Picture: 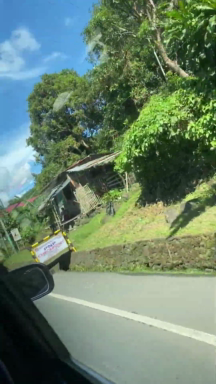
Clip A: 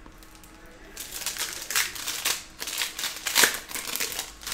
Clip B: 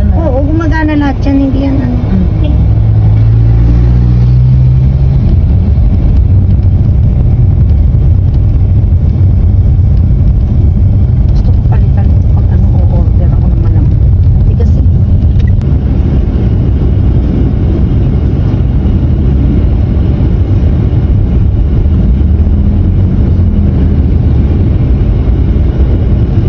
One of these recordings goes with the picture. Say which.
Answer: B